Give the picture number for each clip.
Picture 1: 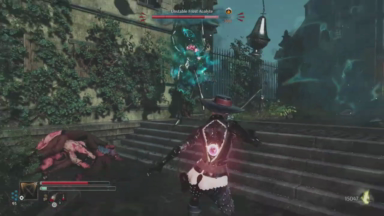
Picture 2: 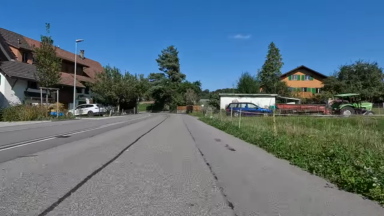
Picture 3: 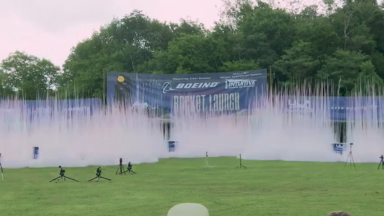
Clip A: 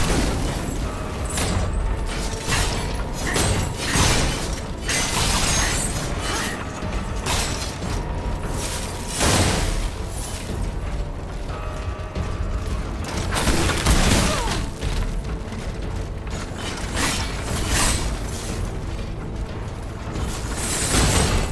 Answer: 1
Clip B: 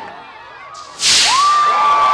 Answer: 3